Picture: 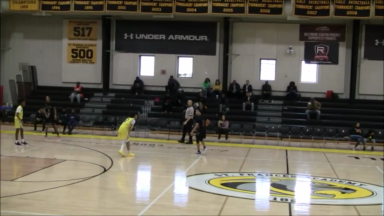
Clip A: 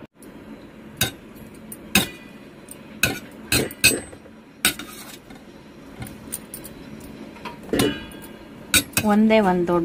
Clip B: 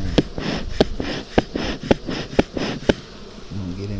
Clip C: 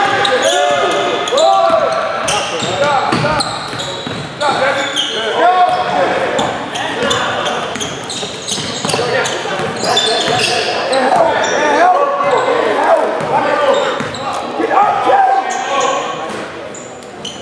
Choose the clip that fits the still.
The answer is C